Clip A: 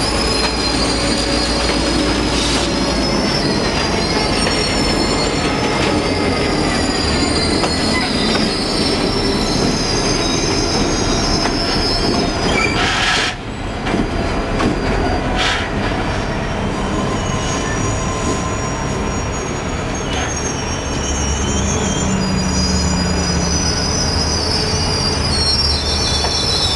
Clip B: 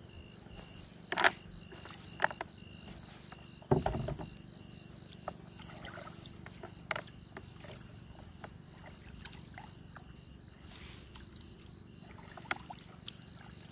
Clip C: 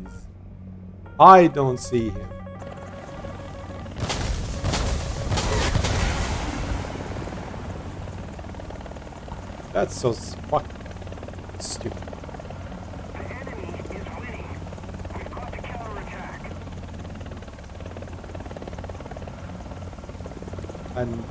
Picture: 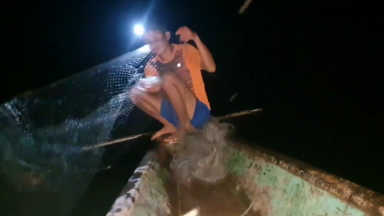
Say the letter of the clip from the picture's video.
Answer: B